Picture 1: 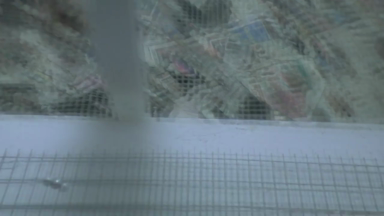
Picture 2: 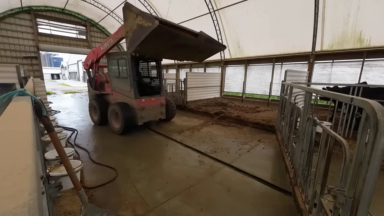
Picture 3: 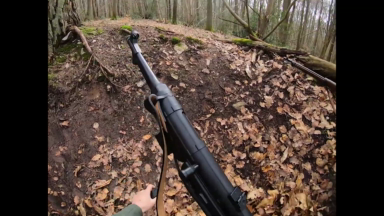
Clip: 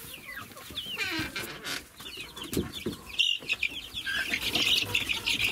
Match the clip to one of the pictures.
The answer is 1